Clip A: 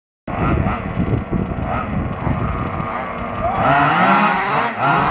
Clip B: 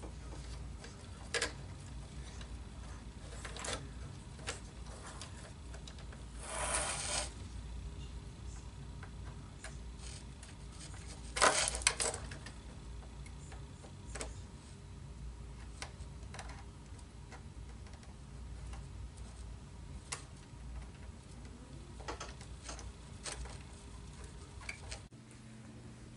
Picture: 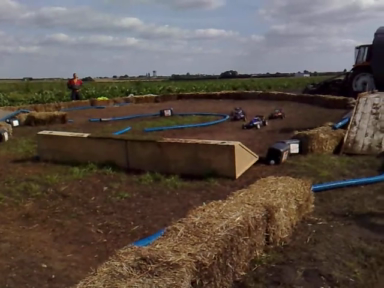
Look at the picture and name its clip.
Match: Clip A